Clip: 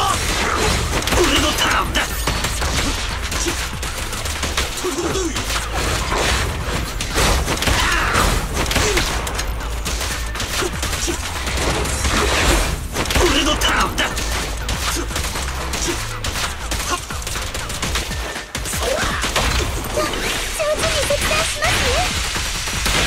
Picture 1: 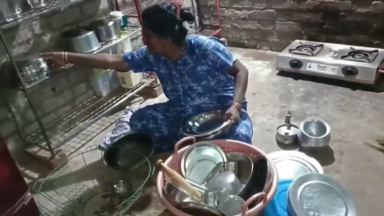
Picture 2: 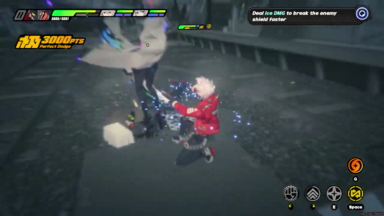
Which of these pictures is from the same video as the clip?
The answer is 2